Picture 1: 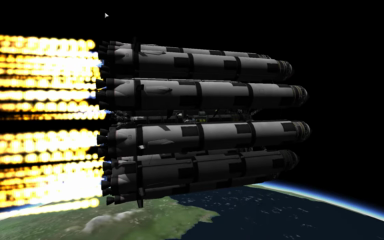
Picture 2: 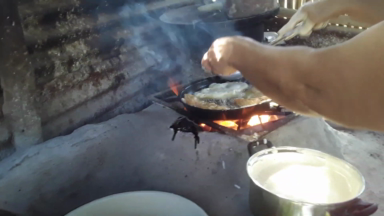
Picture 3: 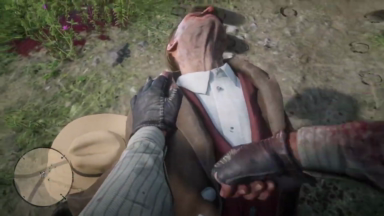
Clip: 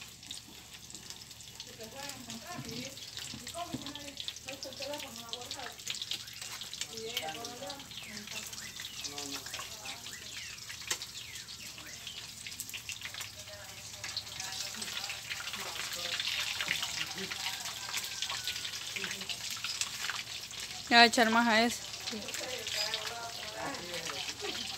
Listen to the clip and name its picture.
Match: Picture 2